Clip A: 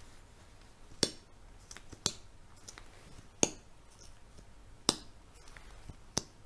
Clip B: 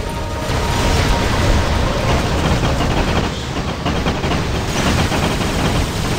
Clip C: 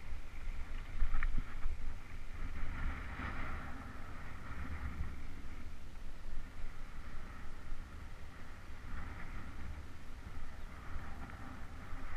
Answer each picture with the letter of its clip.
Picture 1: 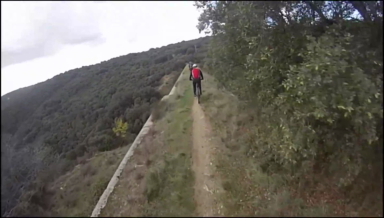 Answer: C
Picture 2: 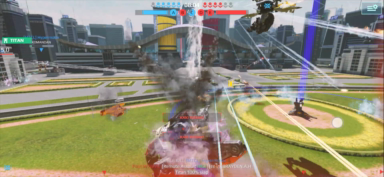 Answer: B